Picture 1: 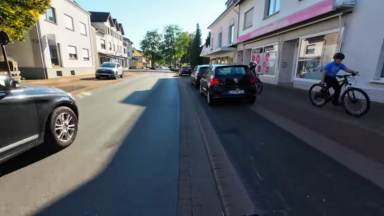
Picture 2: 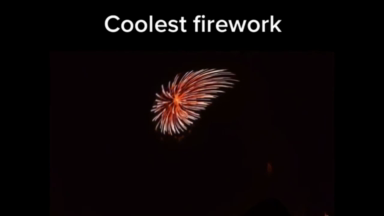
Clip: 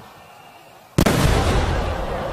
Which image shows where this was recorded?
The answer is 2